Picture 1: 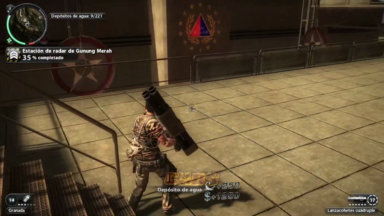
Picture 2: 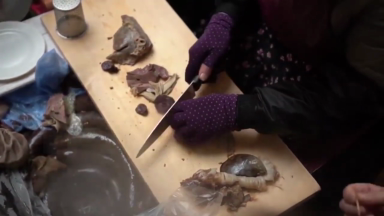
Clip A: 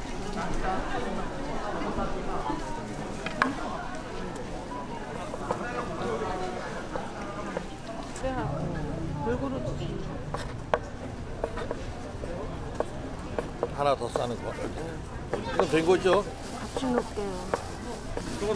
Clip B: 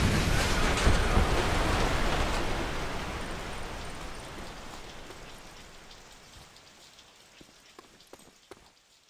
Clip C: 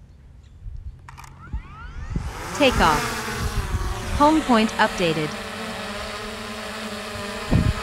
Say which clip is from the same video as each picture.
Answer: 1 B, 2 A